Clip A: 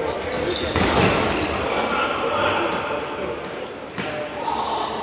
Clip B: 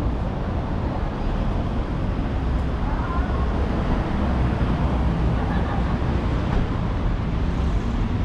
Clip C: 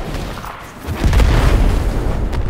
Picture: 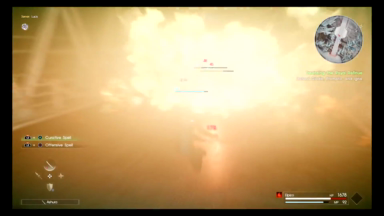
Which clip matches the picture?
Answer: C